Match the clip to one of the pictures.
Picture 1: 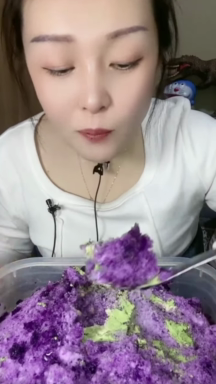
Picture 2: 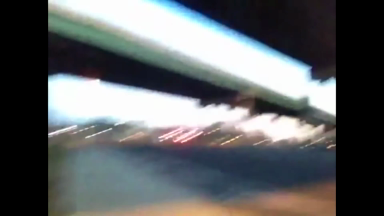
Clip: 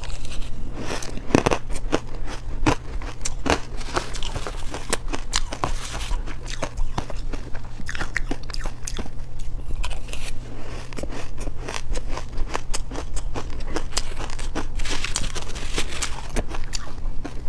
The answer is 1